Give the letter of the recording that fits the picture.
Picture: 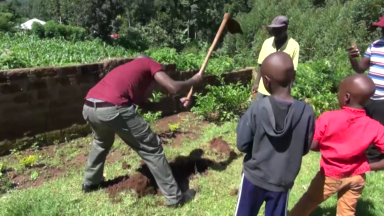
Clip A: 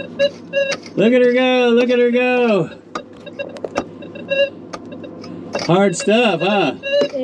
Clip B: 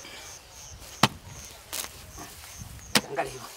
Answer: B